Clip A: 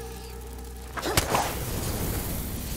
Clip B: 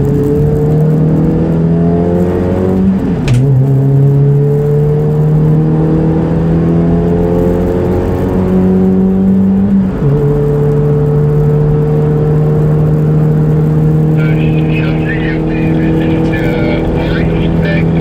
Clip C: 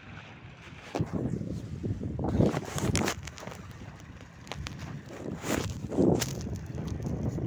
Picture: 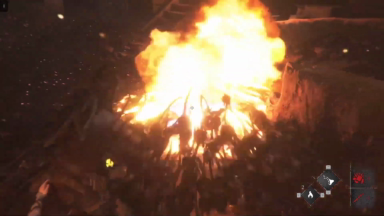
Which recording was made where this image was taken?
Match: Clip A